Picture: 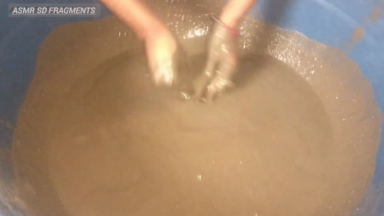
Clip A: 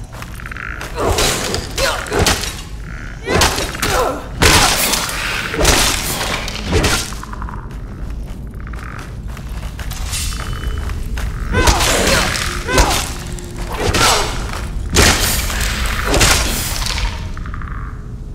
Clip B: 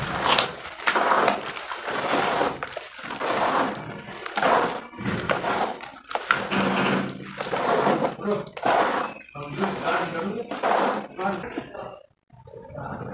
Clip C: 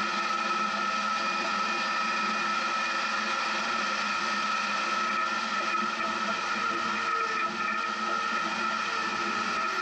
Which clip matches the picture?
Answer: B